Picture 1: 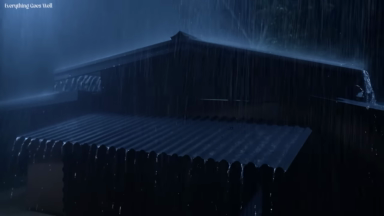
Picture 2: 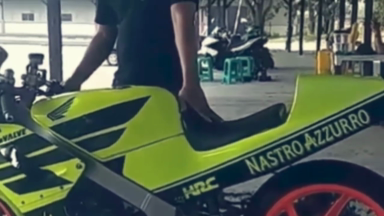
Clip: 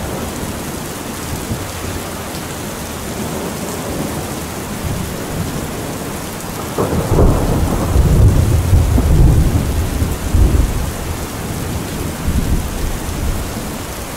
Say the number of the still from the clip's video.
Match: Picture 1